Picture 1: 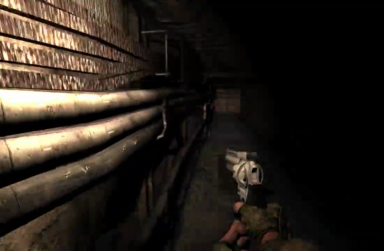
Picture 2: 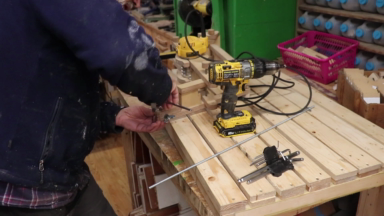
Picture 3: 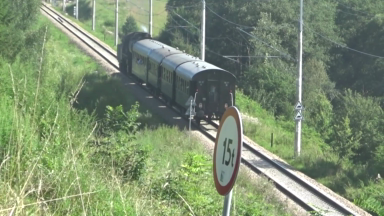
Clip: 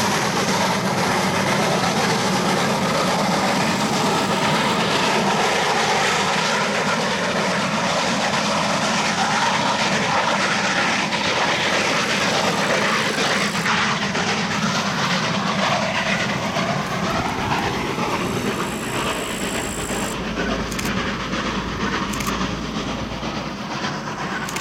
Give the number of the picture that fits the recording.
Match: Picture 3